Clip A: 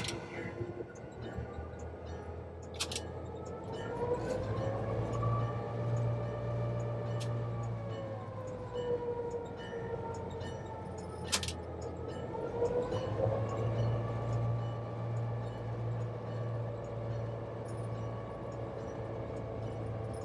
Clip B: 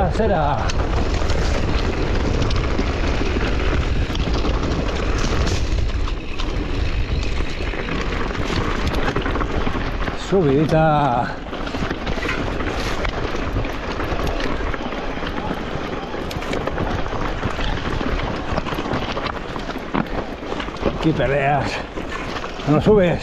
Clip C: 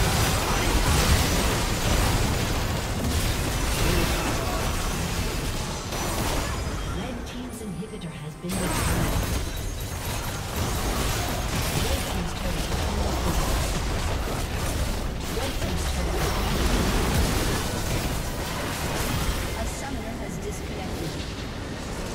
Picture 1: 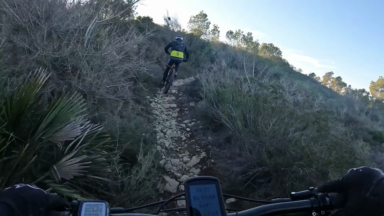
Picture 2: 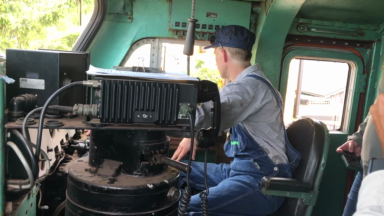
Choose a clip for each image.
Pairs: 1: B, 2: A